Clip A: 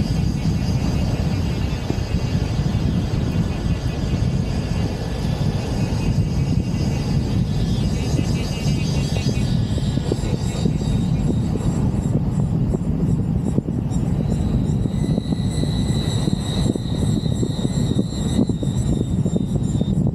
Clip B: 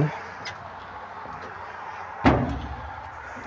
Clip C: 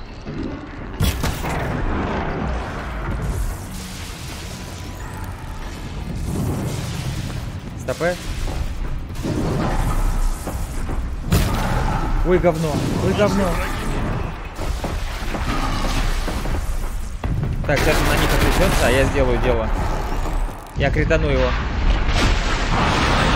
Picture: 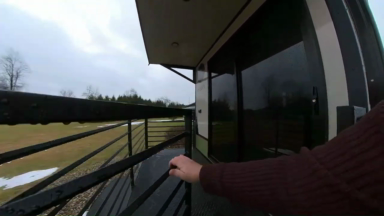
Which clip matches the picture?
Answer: B